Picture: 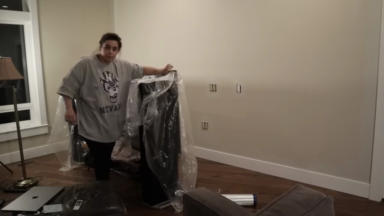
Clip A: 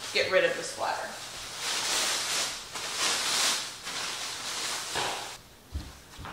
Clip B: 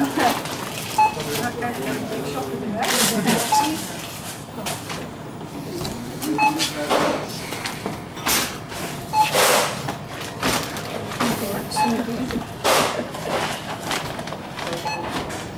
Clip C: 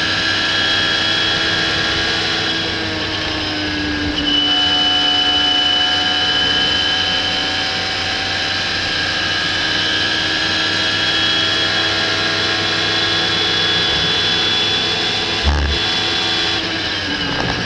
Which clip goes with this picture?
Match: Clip A